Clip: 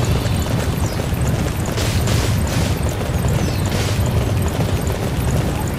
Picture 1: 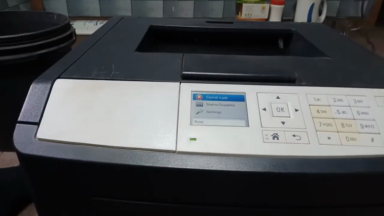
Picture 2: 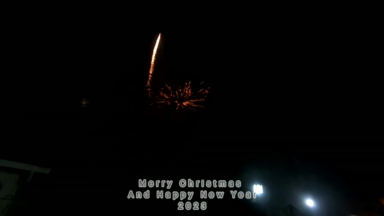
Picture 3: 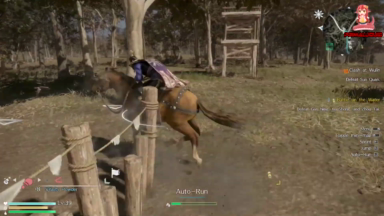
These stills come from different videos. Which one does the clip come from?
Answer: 3